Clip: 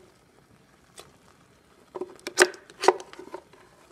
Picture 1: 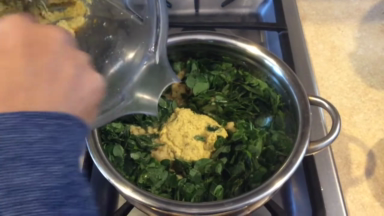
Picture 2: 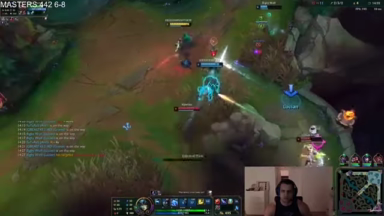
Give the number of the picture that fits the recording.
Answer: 1